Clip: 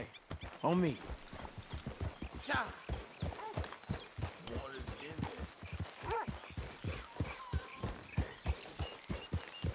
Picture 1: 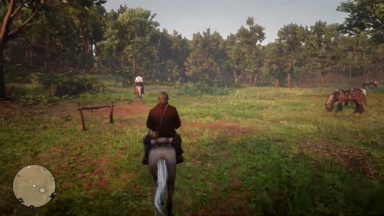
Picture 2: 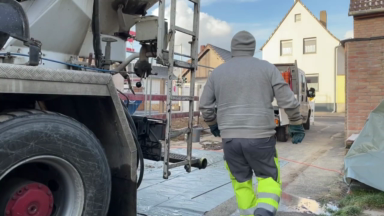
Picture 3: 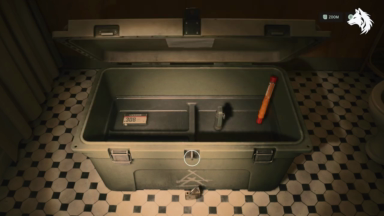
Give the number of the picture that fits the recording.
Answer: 1